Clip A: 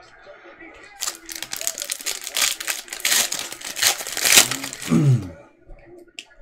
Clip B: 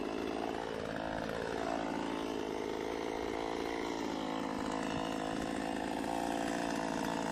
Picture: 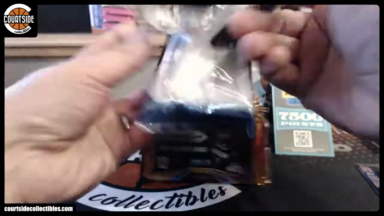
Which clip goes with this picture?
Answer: A